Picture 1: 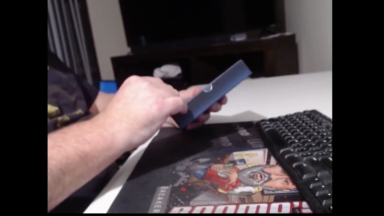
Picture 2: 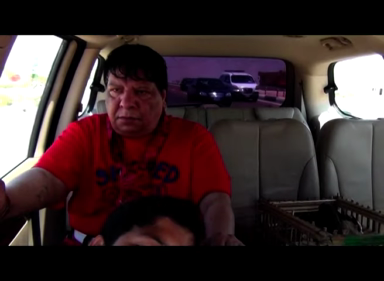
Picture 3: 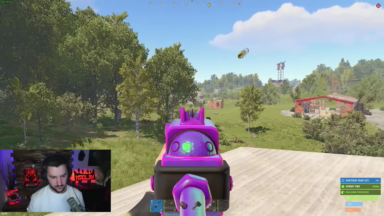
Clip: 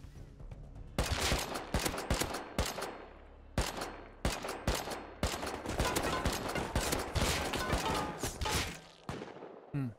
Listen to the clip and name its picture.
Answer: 3